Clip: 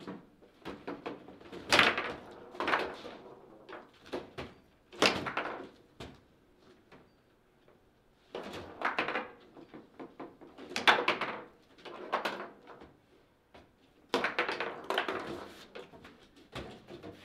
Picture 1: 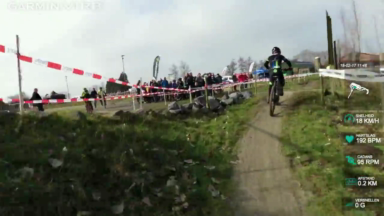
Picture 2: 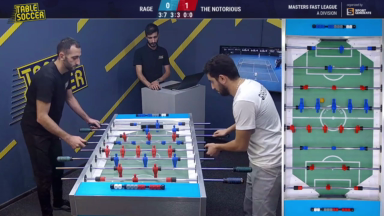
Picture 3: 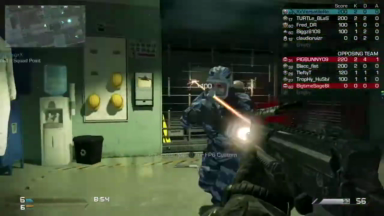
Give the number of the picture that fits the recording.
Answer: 2